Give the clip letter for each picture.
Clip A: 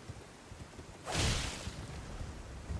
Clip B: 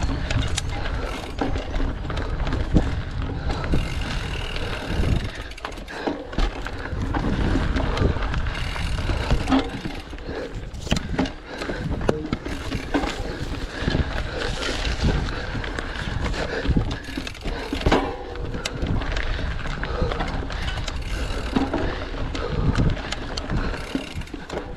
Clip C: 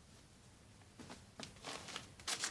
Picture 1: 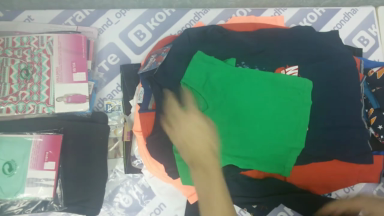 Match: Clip C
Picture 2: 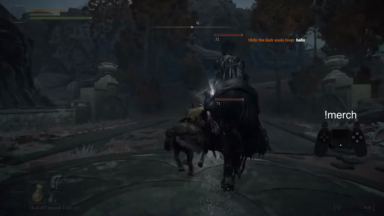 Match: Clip A